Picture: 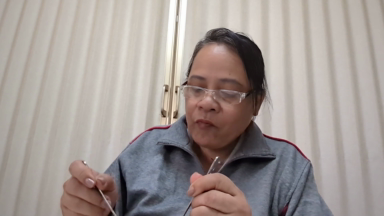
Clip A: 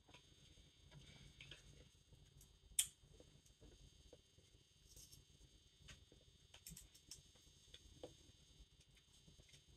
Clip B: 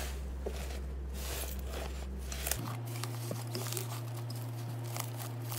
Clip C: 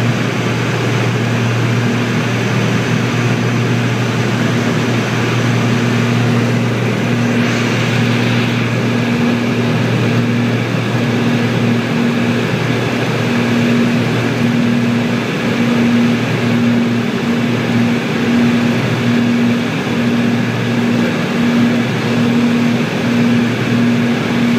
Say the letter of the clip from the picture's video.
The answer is A